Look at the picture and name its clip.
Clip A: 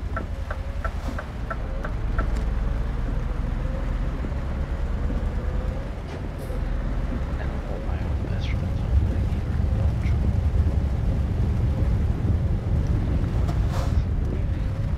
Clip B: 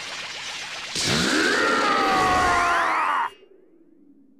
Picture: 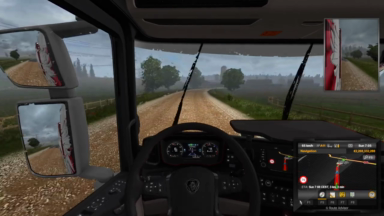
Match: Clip A